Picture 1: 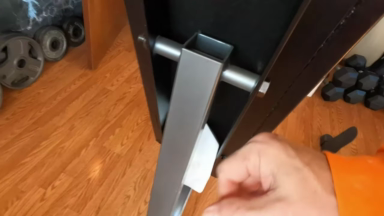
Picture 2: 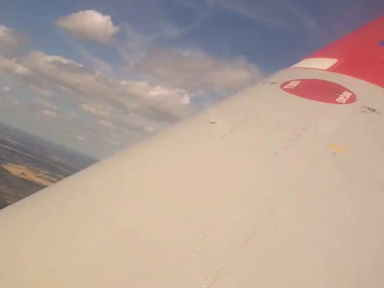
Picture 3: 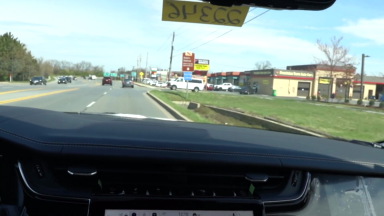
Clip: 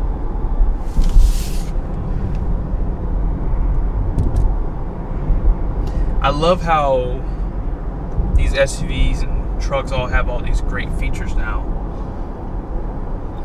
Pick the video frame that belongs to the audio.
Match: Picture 3